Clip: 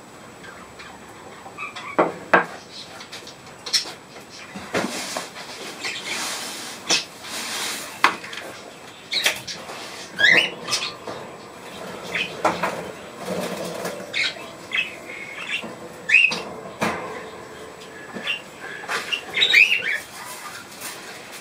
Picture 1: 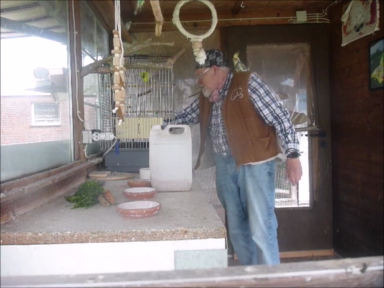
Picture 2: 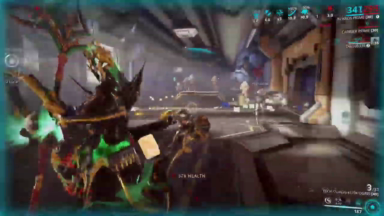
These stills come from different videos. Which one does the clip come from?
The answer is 1